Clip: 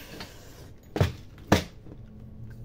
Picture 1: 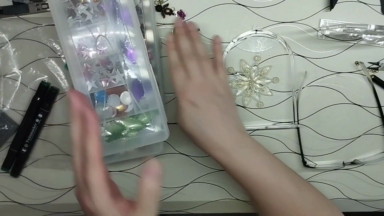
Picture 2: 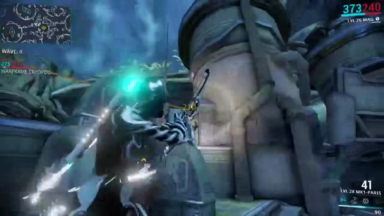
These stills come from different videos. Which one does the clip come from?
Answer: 1